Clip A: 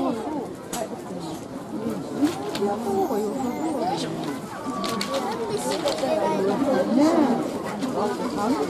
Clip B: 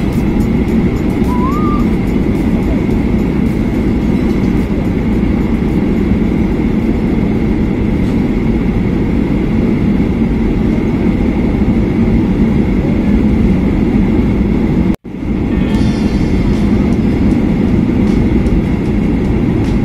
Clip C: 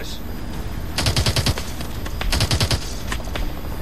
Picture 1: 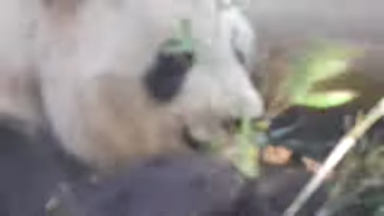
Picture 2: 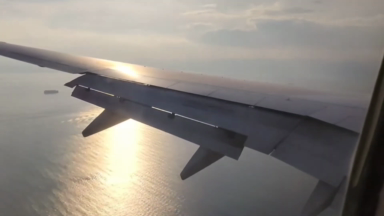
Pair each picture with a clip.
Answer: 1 A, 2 B